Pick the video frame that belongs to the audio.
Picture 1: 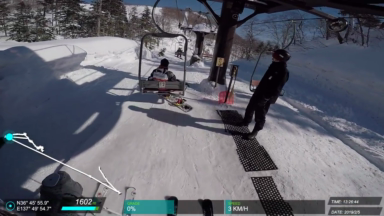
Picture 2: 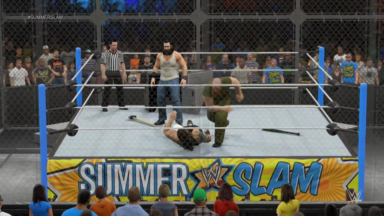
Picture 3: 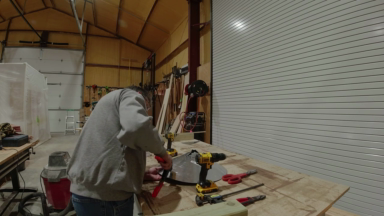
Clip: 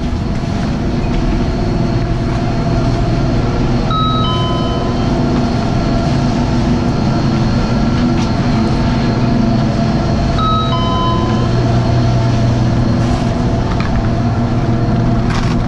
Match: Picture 1